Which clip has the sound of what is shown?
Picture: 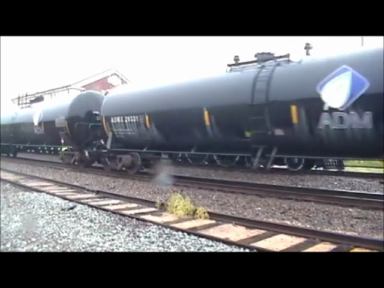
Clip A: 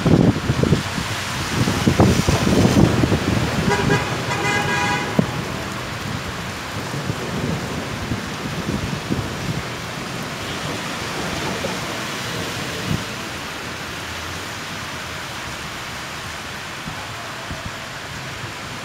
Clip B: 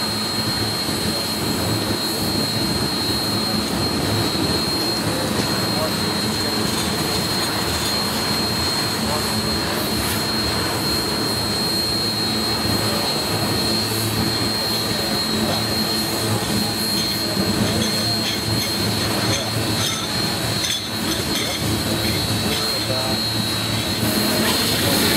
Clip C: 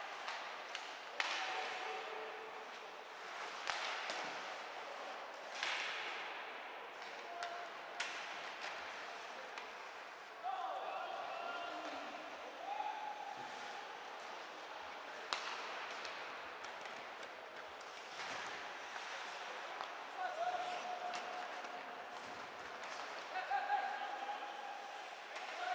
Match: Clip B